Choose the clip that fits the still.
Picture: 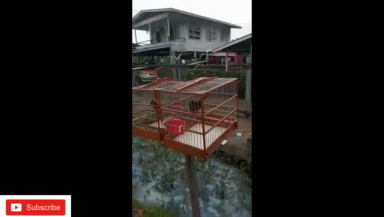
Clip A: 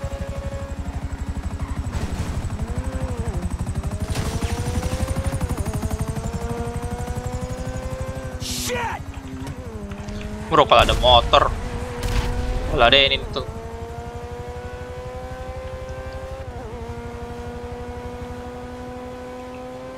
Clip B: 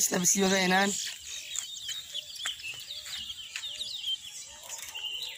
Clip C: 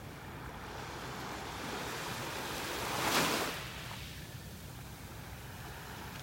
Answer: B